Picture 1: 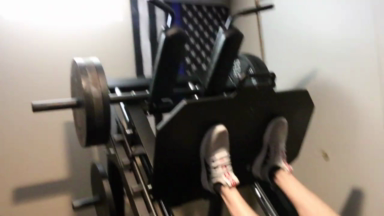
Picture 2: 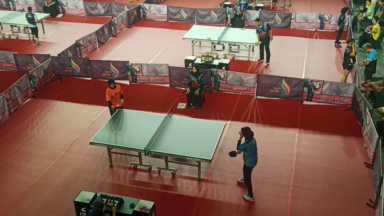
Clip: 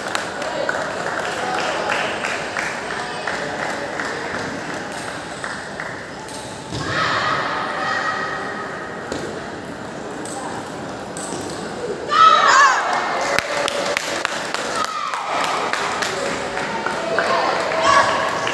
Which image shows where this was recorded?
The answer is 2